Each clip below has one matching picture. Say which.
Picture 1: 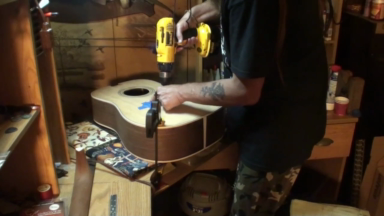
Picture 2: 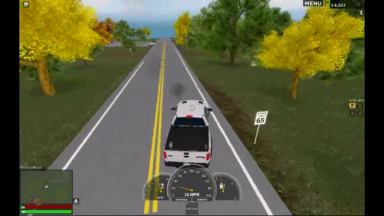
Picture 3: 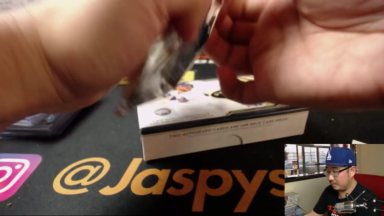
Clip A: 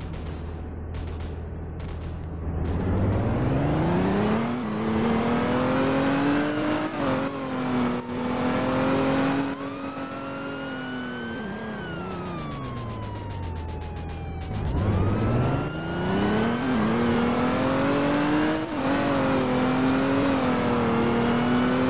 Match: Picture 2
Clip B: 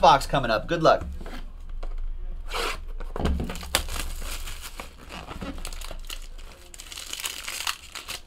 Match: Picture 3